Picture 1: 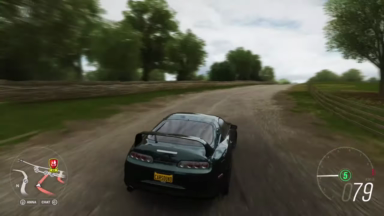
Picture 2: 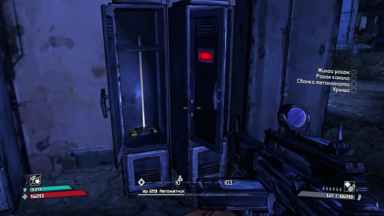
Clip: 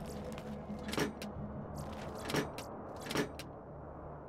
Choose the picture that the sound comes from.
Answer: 2